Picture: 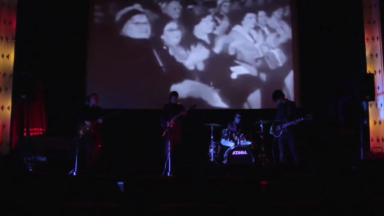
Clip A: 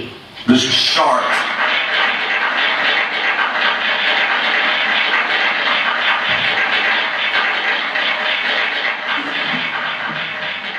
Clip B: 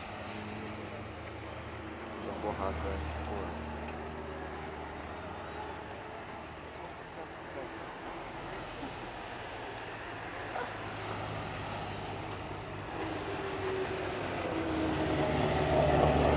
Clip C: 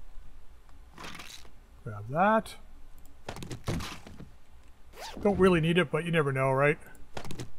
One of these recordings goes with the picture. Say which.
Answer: A